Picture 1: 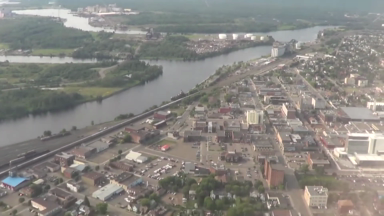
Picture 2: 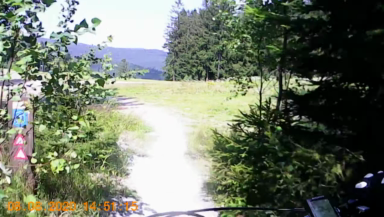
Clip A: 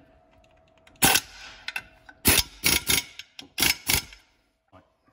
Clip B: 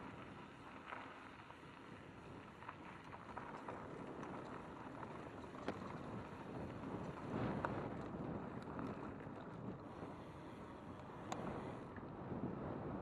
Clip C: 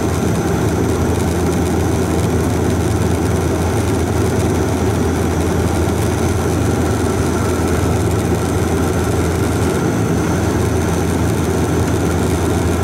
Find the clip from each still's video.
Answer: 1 C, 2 B